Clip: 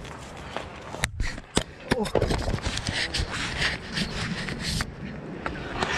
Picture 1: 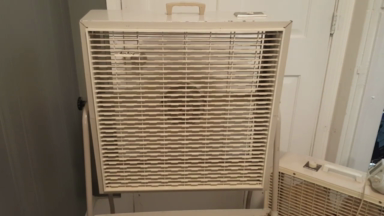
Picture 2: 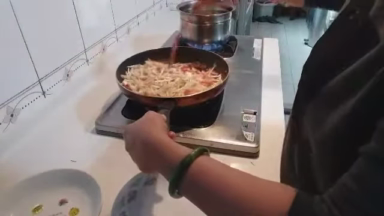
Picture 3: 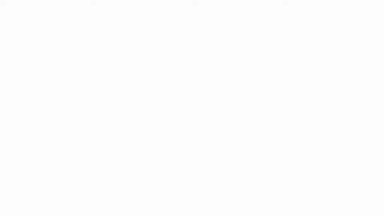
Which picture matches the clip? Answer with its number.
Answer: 3